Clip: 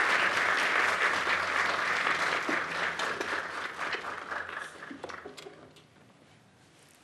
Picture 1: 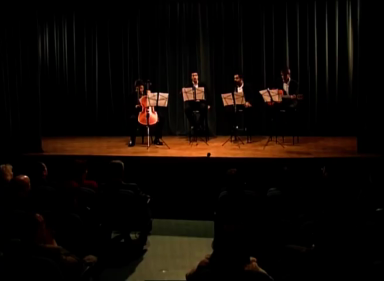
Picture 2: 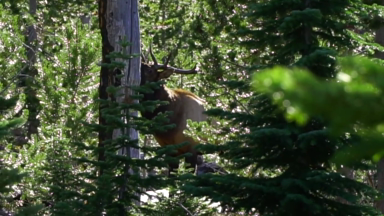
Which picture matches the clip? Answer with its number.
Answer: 1